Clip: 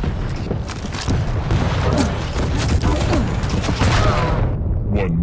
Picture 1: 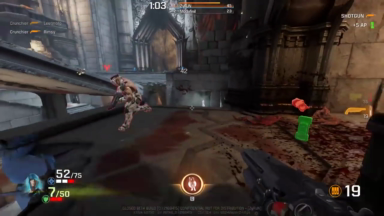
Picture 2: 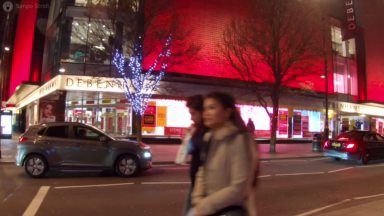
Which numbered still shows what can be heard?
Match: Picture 1